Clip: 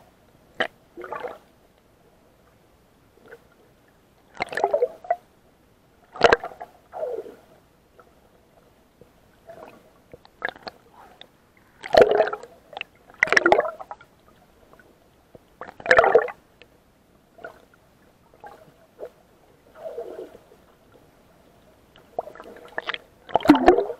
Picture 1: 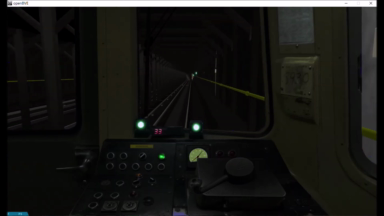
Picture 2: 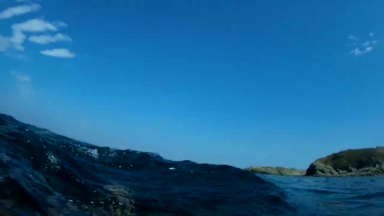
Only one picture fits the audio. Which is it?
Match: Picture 2